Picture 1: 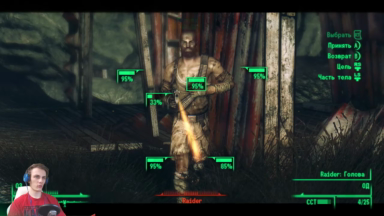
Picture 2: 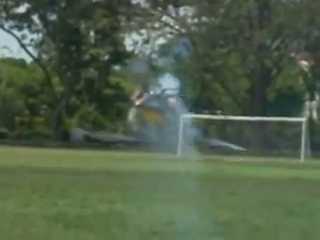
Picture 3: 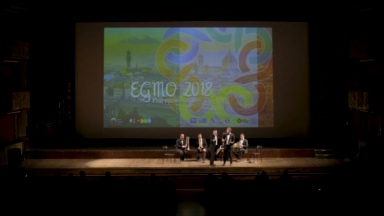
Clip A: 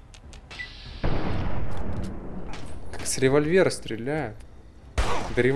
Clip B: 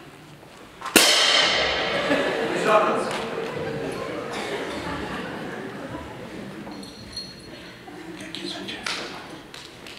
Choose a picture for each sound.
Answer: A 1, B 3